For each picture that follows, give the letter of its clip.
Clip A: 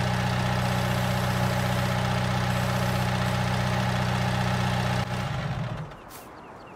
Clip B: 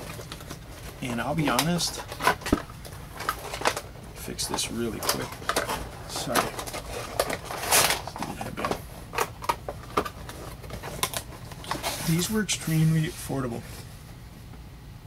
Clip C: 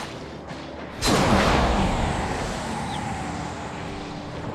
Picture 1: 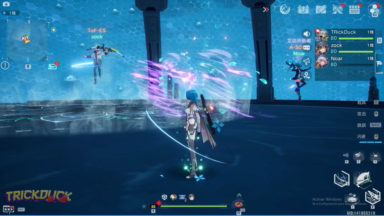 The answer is C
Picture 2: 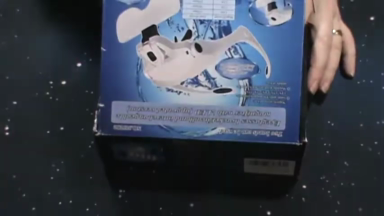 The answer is B